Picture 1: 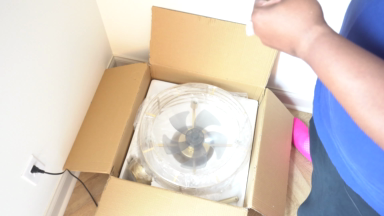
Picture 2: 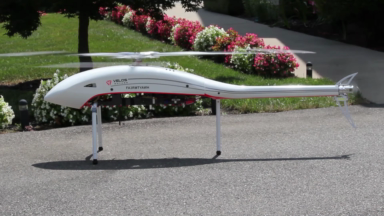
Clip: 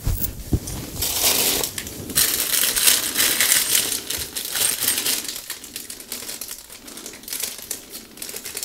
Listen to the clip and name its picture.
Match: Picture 1